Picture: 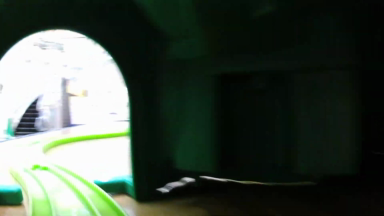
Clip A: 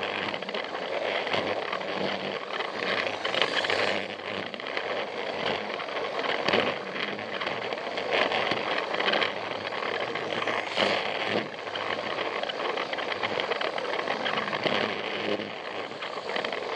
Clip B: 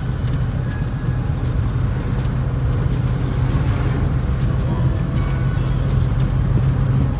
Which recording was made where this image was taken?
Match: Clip A